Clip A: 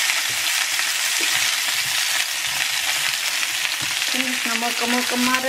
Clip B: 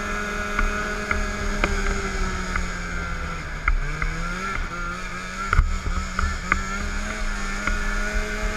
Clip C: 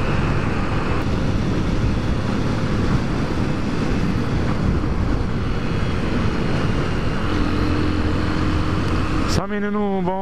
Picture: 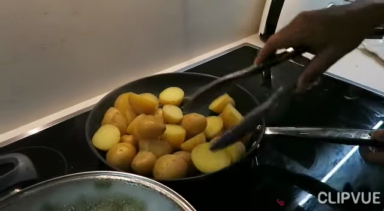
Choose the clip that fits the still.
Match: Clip A